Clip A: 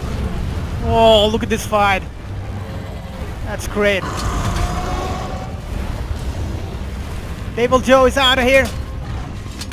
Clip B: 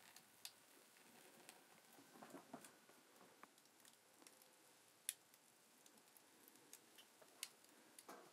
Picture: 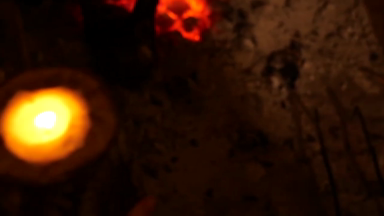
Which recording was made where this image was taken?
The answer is B